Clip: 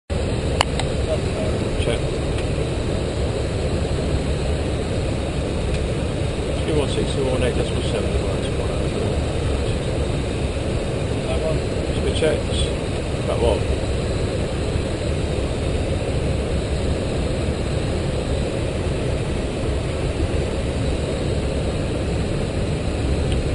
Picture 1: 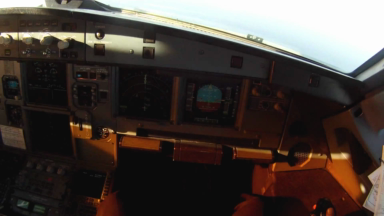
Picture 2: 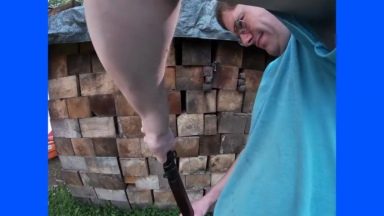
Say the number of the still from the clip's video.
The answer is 1